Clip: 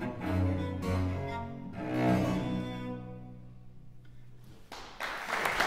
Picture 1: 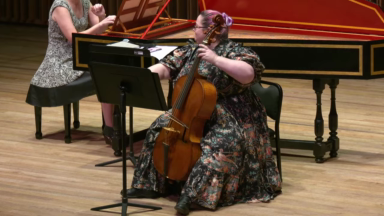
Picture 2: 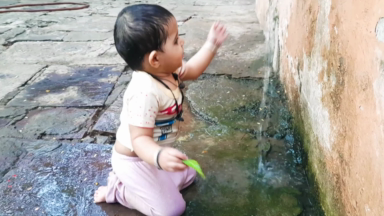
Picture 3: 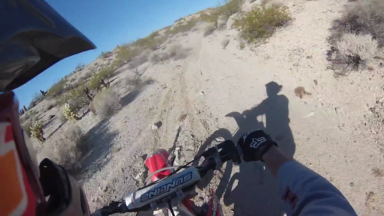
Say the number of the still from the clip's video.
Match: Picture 1